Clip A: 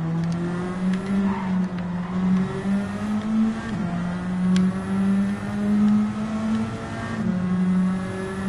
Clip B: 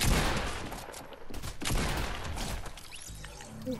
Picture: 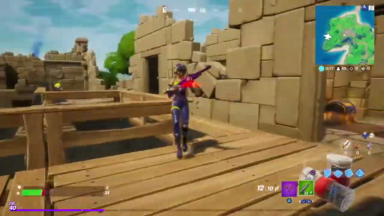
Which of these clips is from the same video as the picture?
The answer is B